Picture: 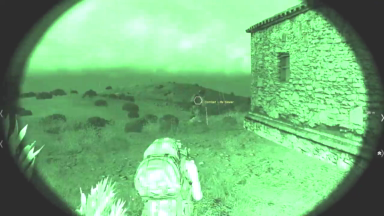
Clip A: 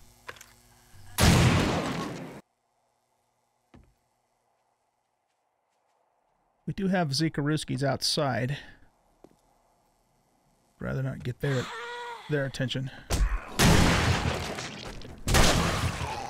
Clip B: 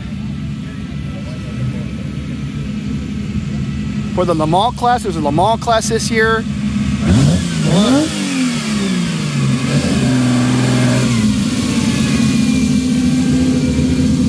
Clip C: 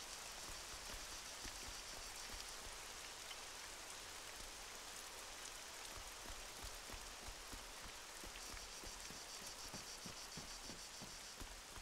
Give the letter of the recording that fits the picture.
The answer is C